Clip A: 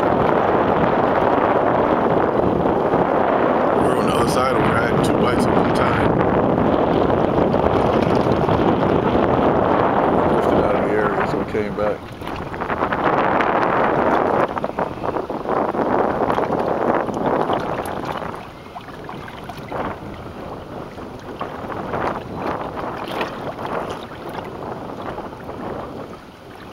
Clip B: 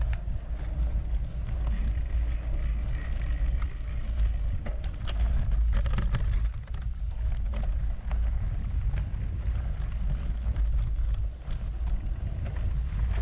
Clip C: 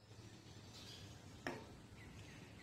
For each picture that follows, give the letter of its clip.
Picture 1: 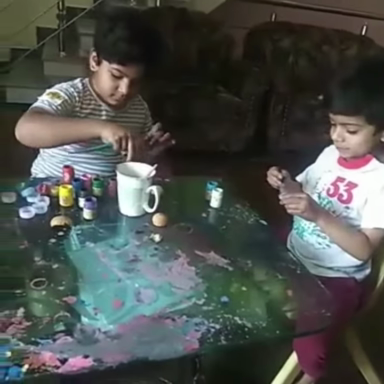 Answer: C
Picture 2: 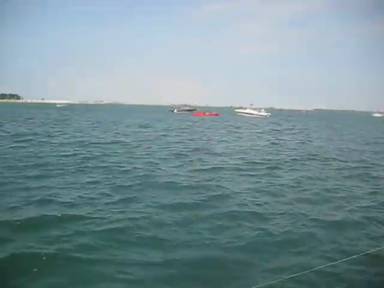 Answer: A